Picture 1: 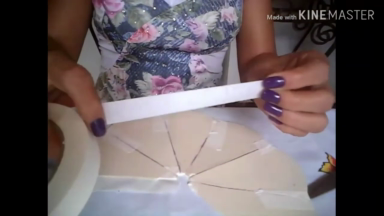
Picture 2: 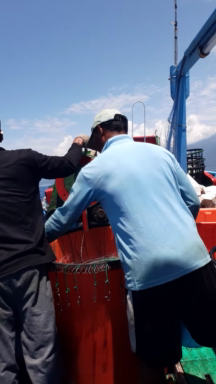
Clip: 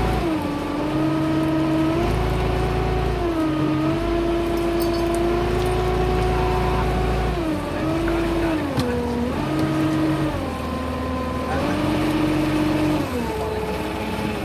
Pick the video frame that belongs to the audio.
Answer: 2